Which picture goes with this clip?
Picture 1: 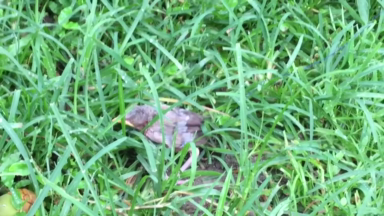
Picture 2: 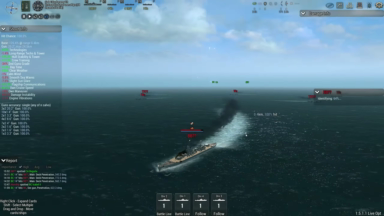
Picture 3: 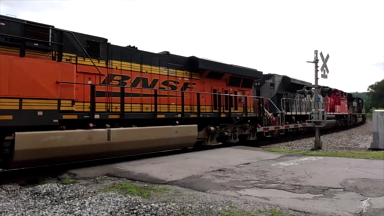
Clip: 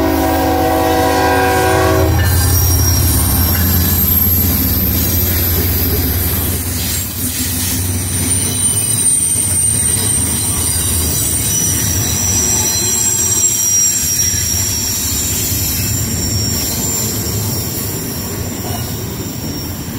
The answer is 3